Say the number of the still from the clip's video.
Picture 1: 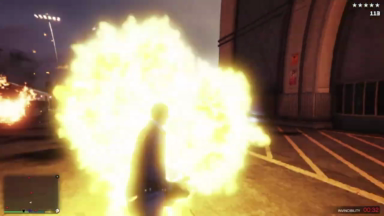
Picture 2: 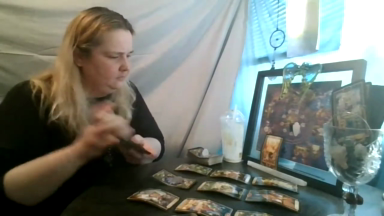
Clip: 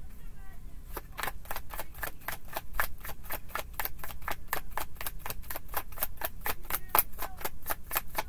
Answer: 2